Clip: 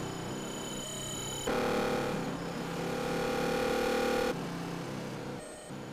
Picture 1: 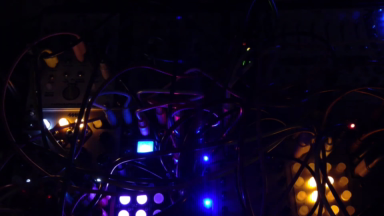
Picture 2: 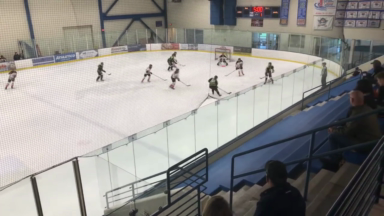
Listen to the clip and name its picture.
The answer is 1